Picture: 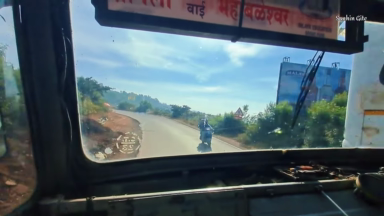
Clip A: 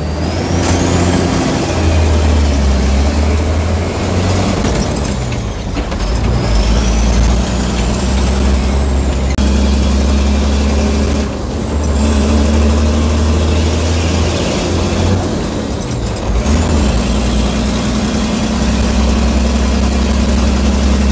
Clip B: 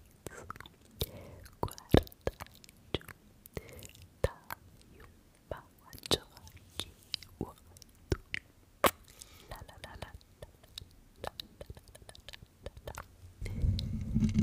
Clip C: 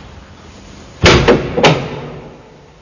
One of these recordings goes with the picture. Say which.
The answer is A